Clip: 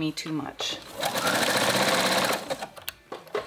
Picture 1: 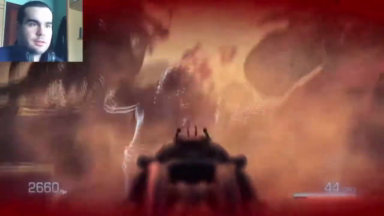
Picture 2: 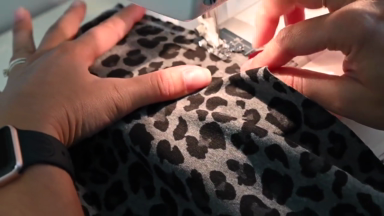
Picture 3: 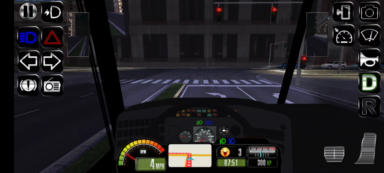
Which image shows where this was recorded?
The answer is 2